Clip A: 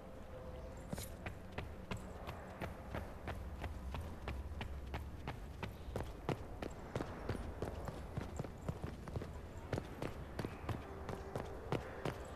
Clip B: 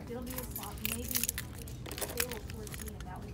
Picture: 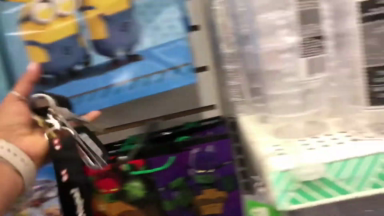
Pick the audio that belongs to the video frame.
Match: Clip B